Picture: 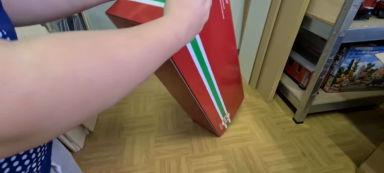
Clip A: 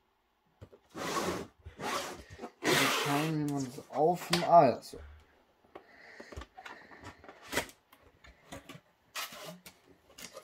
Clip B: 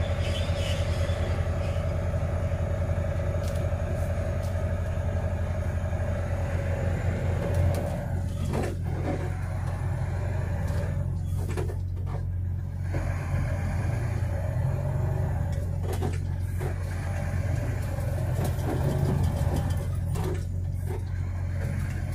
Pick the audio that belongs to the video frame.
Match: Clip A